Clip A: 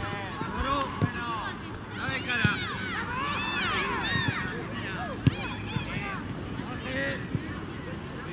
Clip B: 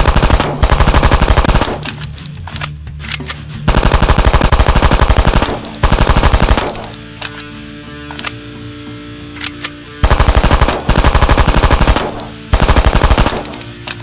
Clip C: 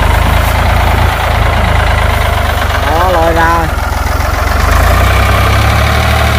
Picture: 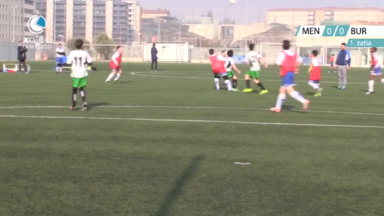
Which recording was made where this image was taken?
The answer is A